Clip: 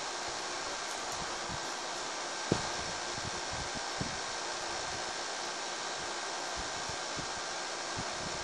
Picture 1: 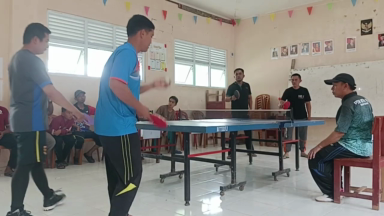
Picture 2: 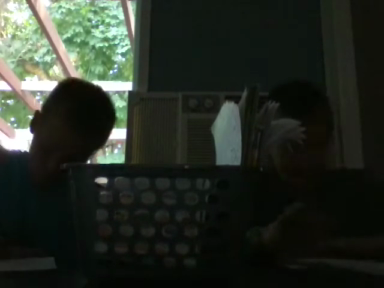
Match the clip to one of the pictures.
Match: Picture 2